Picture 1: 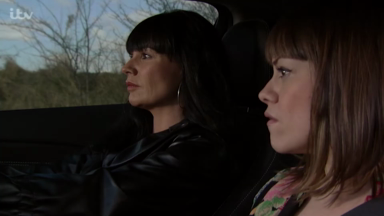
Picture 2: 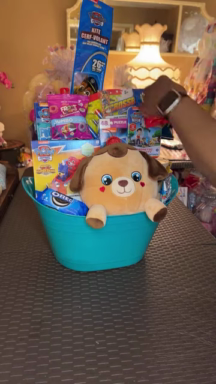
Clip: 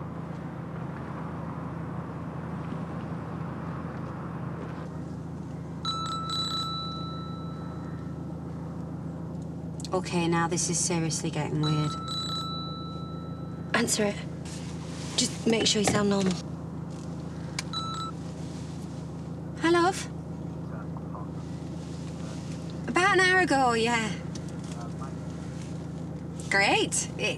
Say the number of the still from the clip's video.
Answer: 1